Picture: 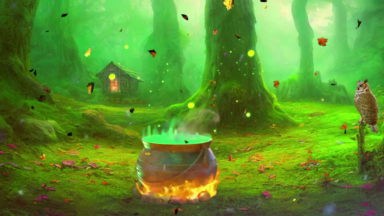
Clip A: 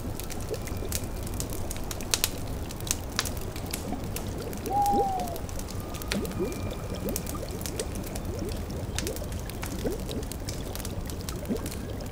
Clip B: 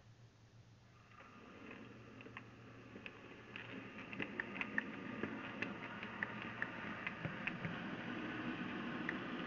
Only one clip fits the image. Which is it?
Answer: A